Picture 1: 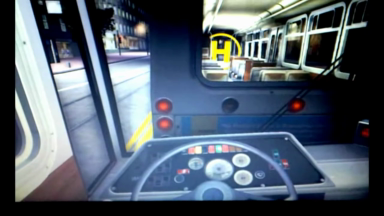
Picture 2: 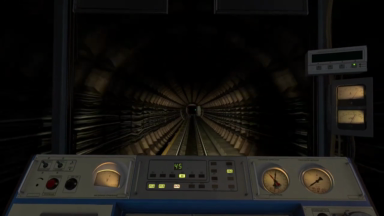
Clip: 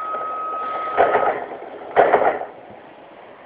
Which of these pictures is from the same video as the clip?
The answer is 1